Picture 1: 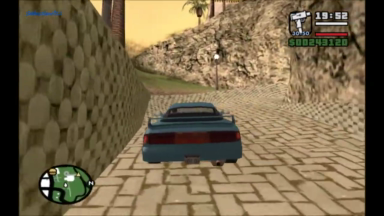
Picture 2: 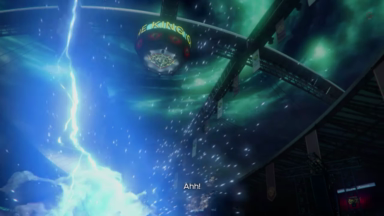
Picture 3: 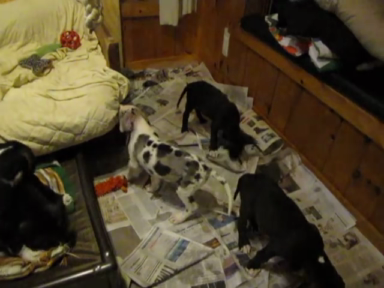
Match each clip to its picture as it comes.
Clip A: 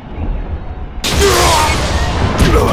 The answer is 2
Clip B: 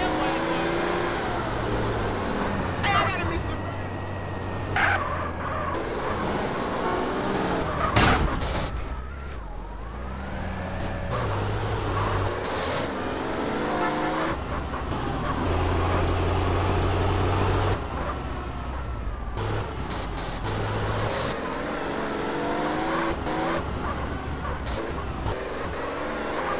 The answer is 1